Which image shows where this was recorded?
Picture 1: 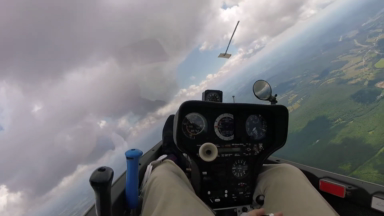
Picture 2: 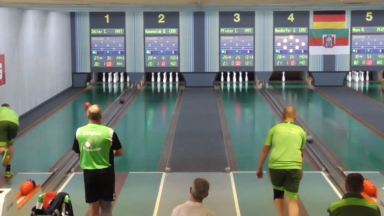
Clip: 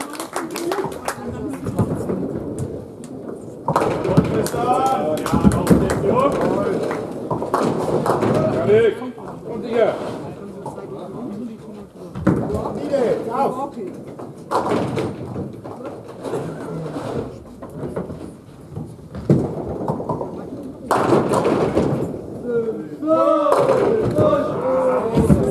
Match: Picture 2